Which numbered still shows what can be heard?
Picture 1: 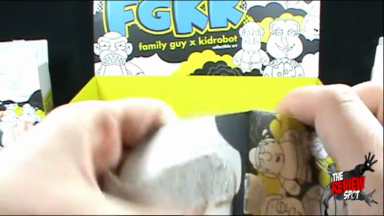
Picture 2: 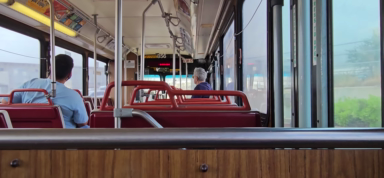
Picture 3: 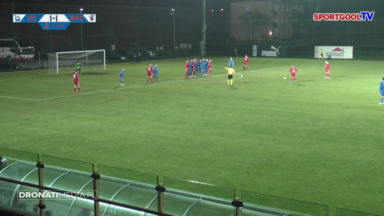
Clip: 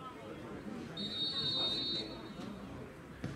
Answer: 3